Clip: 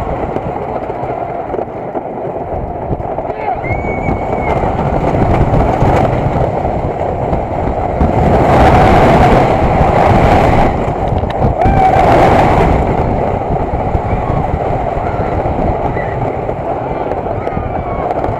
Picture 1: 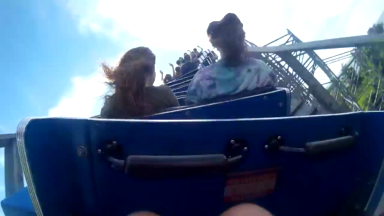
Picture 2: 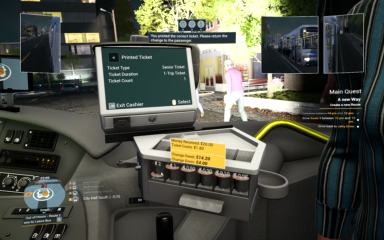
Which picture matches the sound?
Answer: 1